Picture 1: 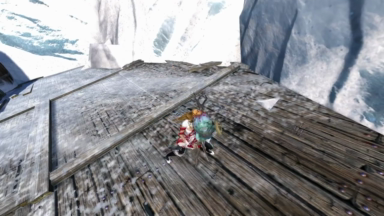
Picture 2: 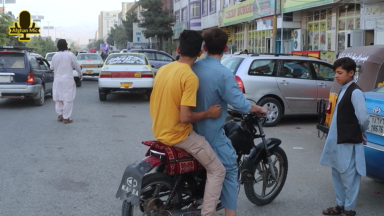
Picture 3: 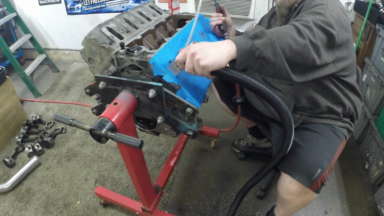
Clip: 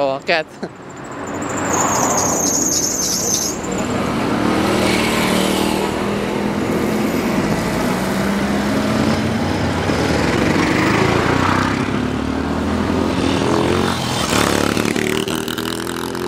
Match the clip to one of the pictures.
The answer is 2